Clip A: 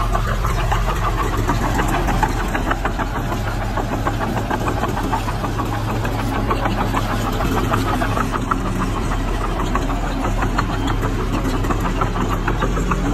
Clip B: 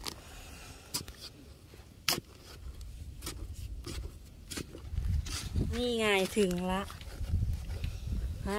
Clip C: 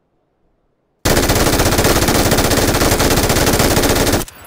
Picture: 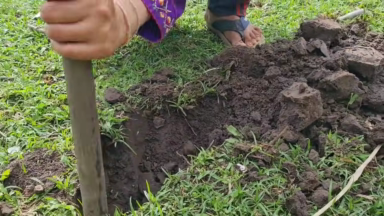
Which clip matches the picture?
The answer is B